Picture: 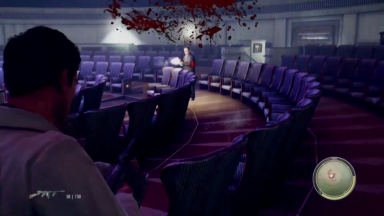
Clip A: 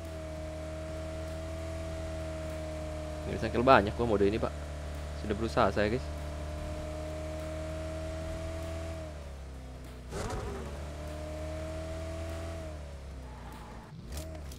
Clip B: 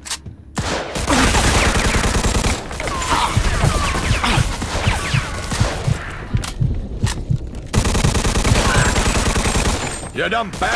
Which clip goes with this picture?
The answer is B